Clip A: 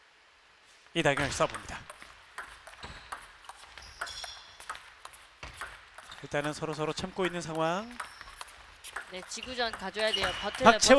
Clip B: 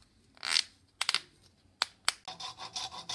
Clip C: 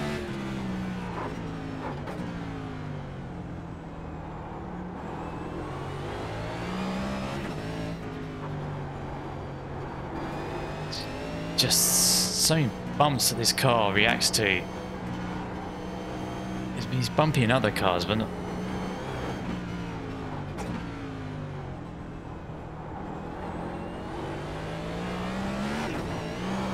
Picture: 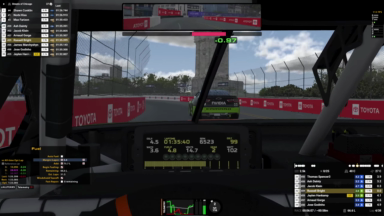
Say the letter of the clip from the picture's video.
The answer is C